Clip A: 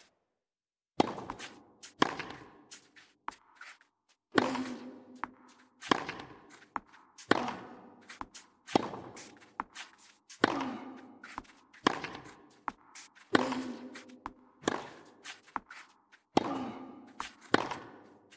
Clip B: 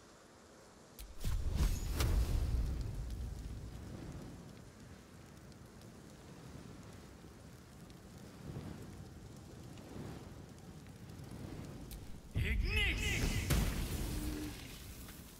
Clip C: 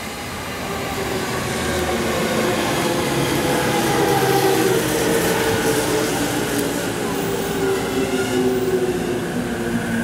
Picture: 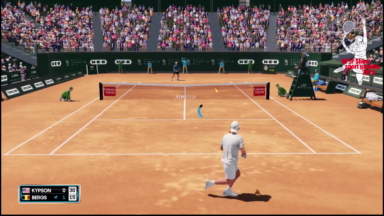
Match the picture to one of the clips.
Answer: A